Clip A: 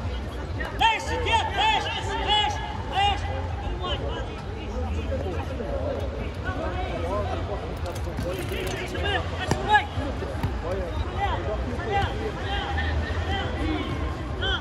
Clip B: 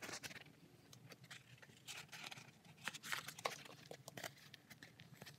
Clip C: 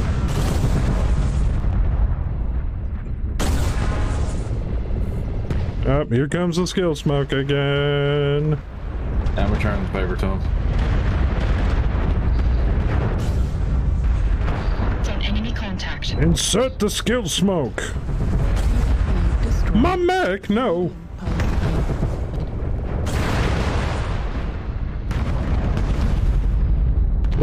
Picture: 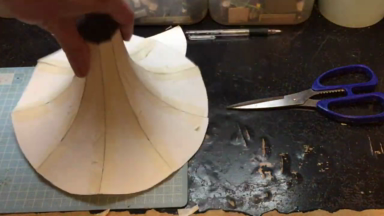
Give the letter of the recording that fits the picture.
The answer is B